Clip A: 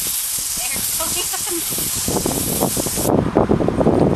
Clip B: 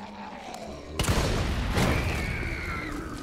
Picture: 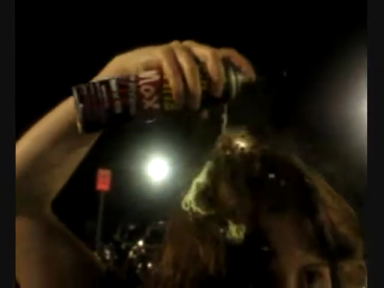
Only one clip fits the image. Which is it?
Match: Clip A